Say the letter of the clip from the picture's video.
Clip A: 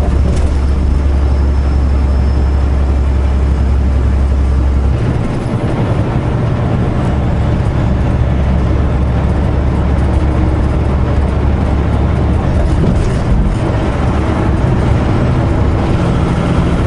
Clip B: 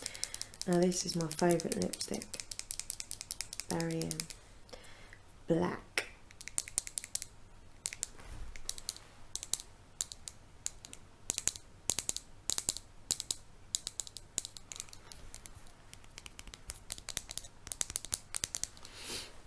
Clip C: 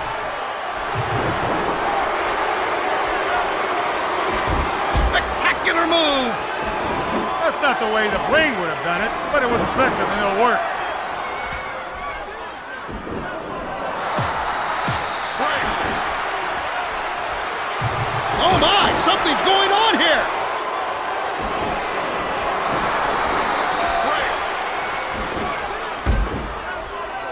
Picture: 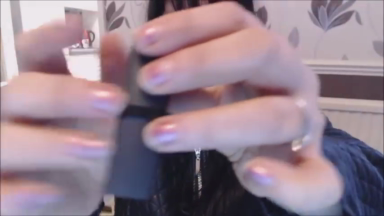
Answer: B